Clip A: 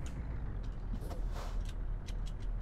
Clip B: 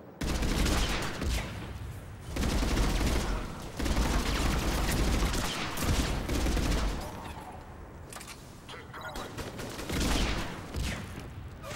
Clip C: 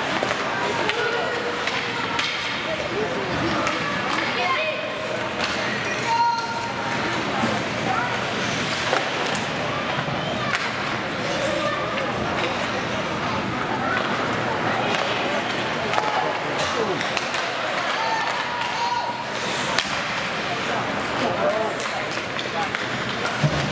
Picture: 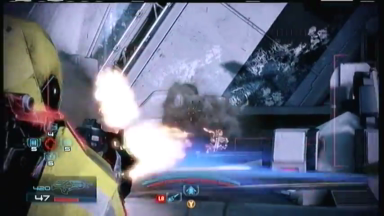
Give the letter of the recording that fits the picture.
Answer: B